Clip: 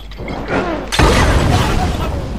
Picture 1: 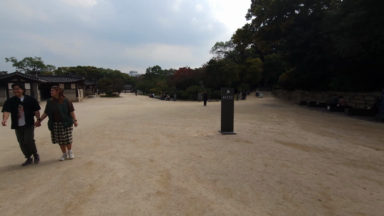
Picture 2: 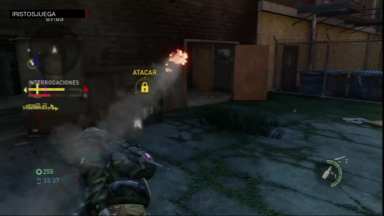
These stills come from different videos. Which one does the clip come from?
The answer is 2